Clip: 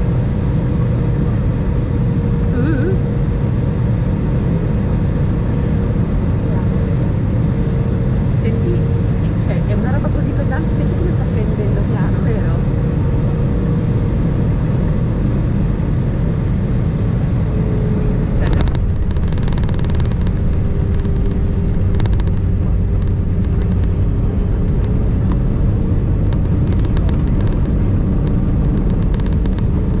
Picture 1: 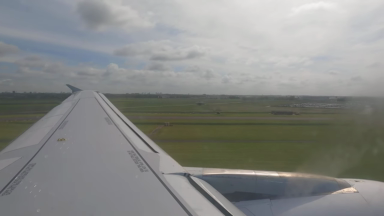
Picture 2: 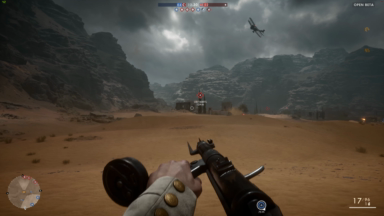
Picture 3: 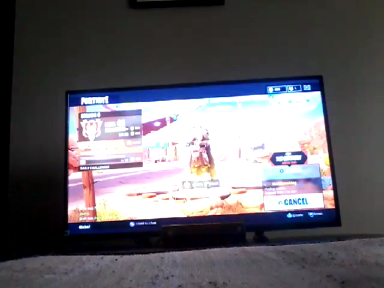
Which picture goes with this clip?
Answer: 1